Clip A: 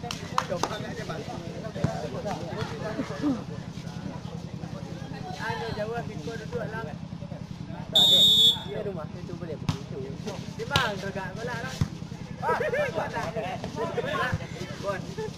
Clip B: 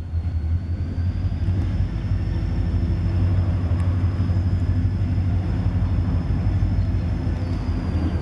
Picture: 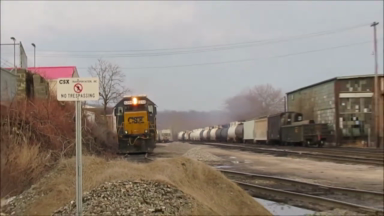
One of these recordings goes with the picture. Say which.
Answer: B